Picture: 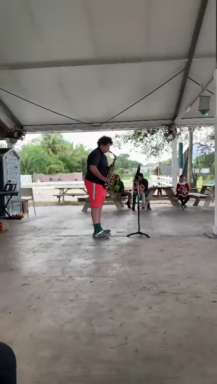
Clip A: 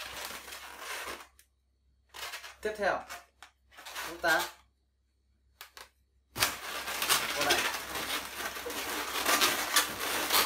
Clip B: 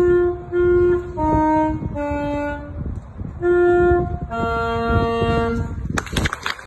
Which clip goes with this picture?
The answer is B